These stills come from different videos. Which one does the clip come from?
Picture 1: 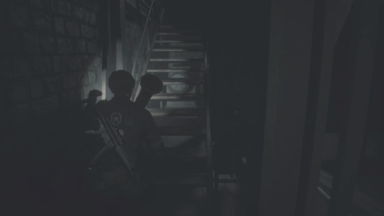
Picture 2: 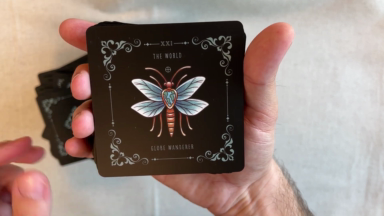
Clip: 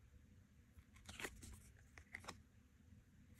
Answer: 2